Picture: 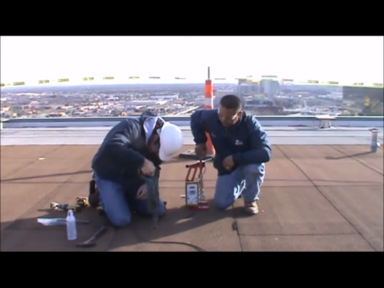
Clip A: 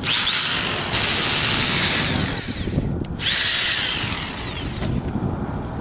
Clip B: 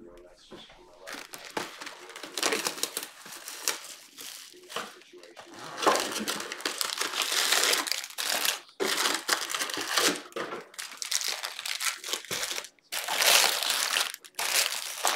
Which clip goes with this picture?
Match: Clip A